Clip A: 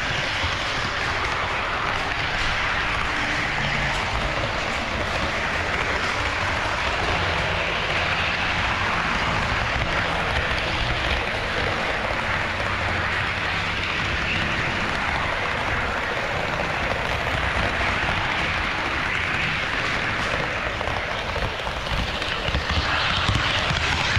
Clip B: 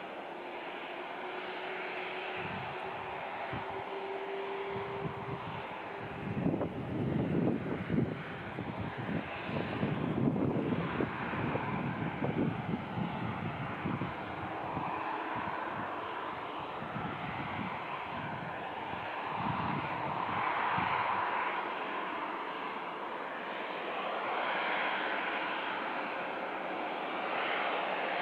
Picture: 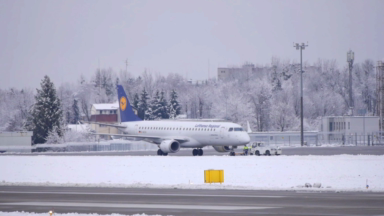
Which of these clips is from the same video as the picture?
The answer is B